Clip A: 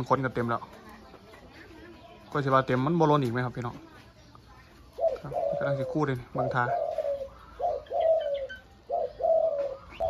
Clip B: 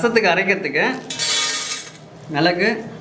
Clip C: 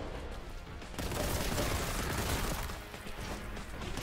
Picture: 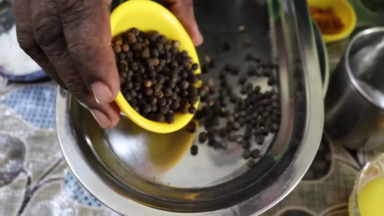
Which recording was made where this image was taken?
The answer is B